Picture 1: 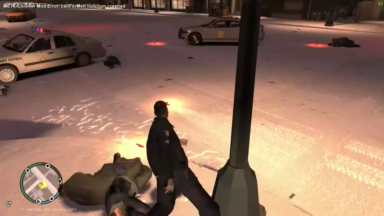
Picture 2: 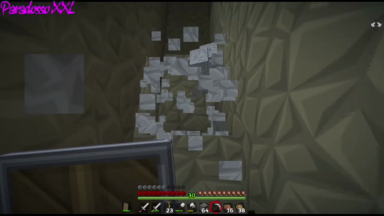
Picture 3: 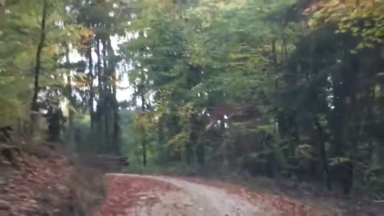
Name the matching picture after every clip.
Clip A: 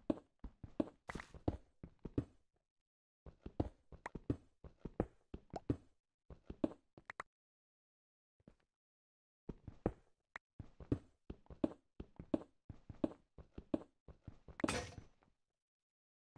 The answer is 2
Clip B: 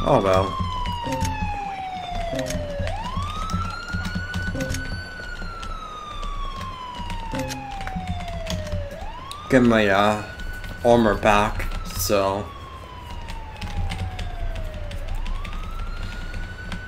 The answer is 1